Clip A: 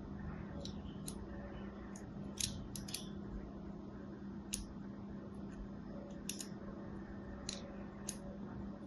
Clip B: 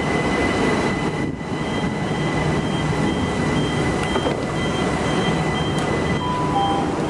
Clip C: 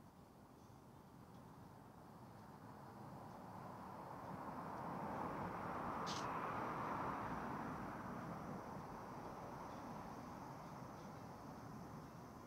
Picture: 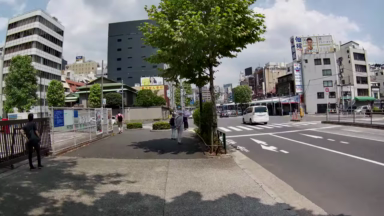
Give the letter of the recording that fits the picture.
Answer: C